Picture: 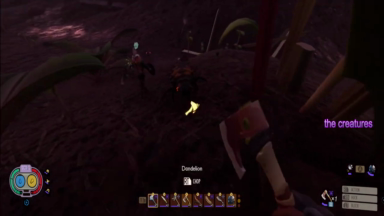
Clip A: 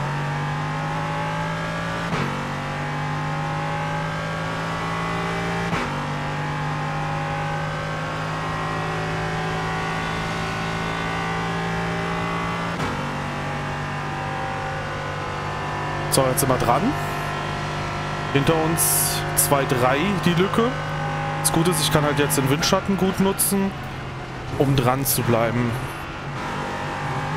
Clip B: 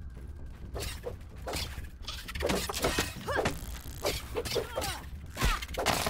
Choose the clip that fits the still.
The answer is B